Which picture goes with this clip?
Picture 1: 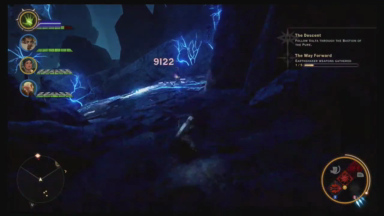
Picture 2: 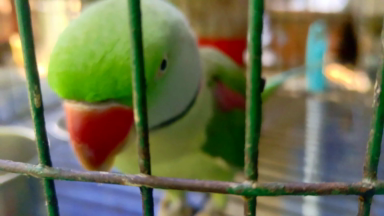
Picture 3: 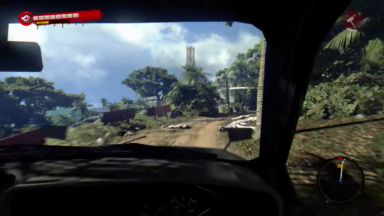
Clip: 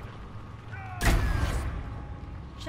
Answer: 1